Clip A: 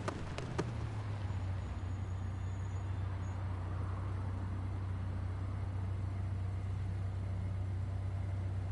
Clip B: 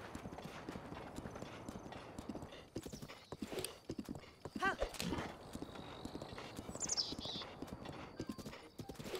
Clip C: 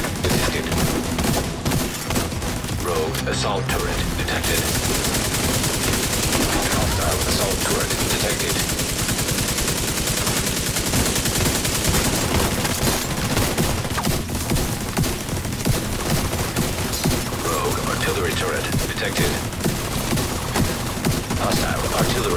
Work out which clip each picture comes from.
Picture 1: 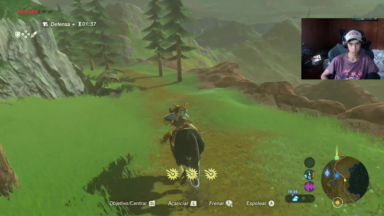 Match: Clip B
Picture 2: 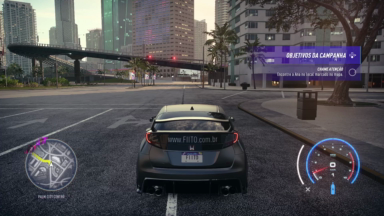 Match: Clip A